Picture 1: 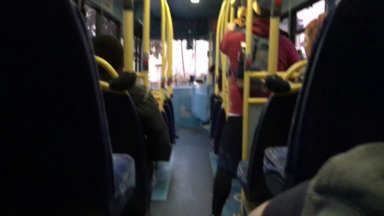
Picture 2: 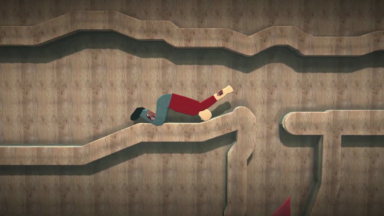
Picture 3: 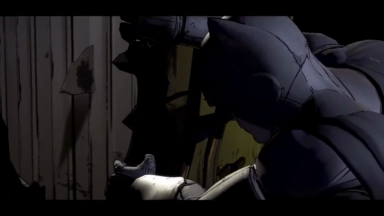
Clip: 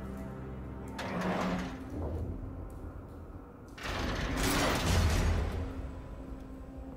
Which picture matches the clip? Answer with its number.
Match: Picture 3